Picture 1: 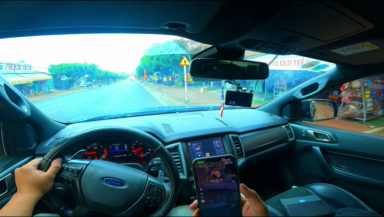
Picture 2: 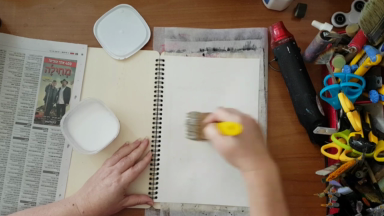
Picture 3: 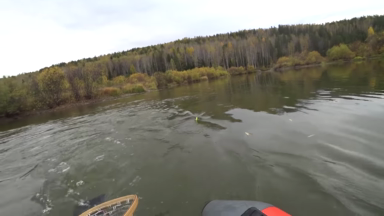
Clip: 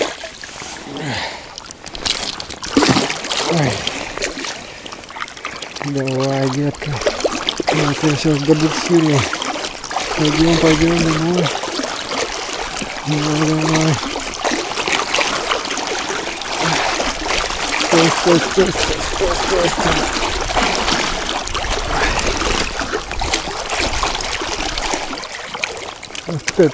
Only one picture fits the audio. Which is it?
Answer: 3